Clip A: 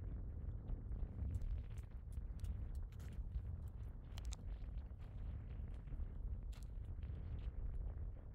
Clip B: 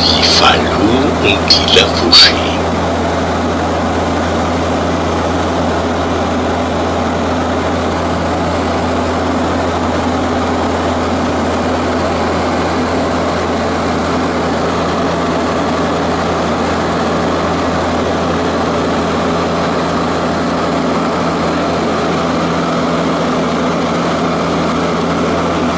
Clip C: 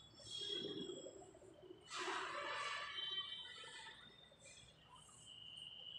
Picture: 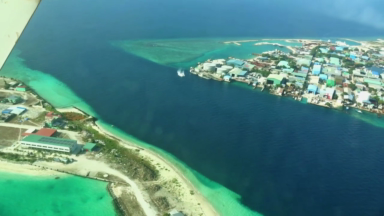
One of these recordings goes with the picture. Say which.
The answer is B